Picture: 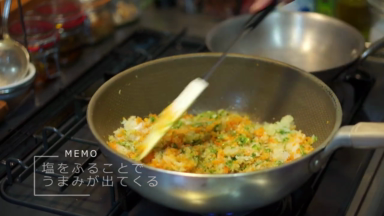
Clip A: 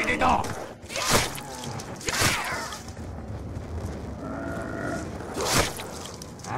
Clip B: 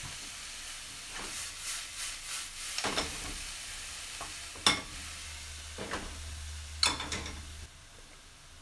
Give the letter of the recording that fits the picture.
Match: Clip B